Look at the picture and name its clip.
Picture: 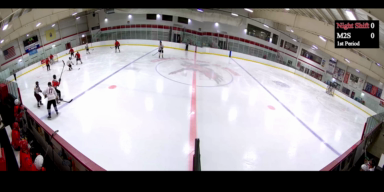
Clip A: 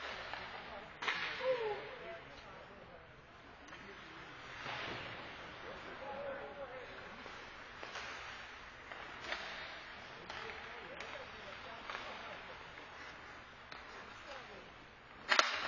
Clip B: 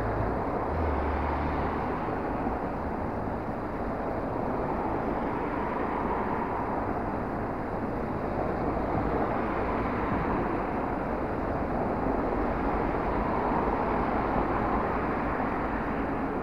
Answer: A